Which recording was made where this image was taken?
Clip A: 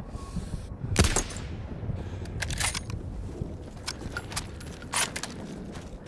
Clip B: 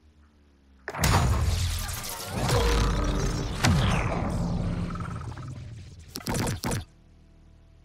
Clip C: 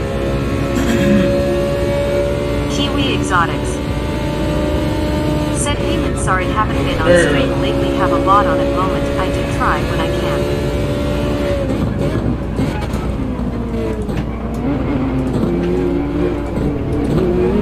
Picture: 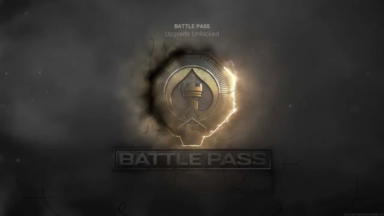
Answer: B